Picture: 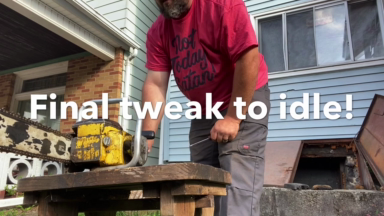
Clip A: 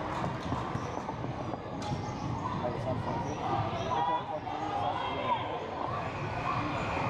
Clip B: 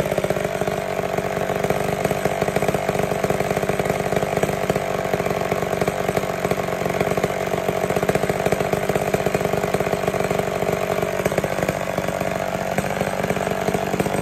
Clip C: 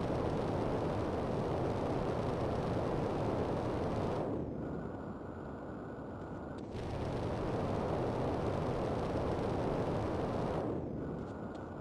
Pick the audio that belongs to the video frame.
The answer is B